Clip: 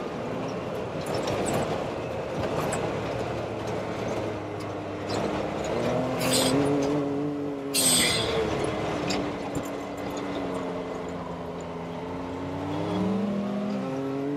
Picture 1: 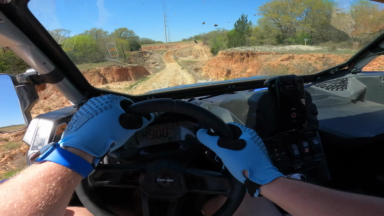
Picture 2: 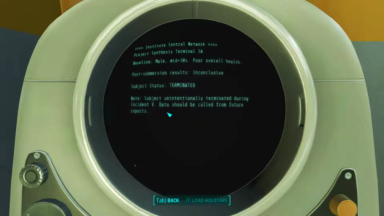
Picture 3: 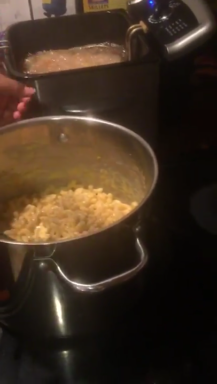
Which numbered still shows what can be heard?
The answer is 1